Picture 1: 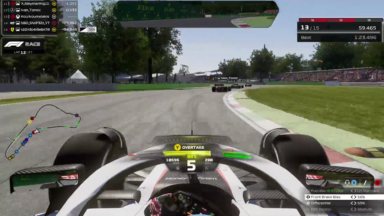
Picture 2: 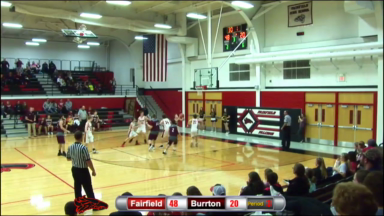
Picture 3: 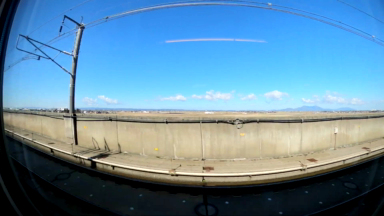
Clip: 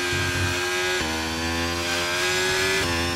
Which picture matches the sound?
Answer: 1